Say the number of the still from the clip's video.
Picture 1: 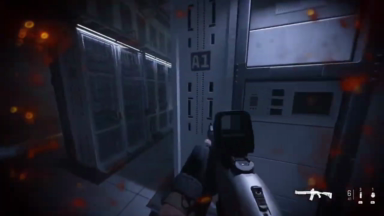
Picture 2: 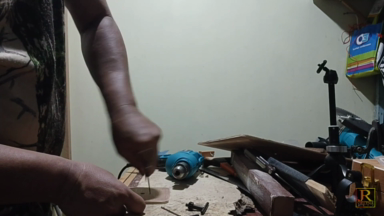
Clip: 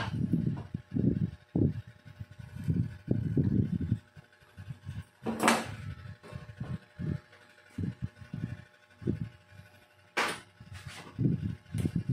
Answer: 2